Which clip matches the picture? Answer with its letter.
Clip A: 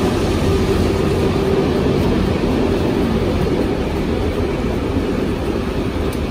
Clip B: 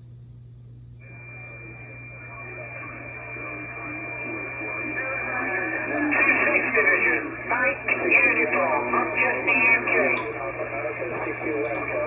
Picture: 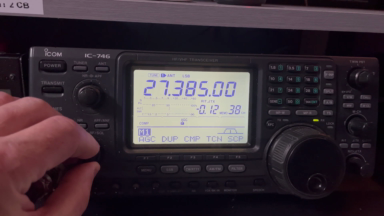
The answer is B